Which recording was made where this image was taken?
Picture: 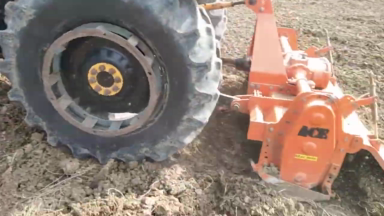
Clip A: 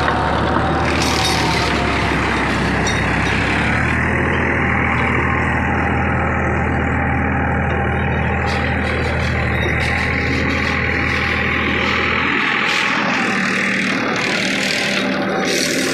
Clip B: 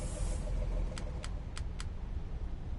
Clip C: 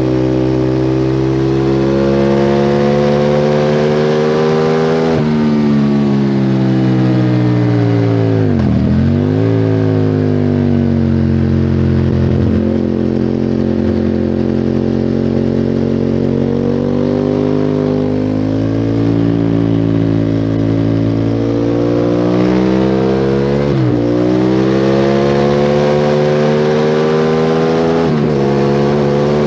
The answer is A